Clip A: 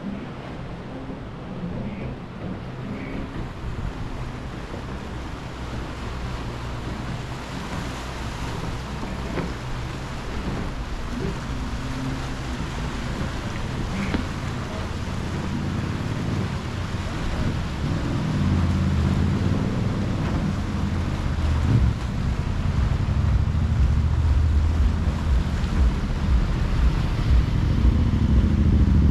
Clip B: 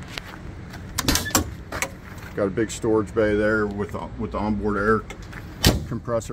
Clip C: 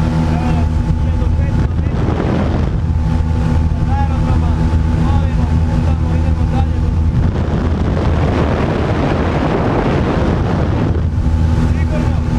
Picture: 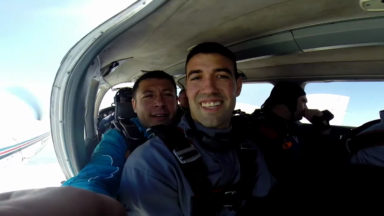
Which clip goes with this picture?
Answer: C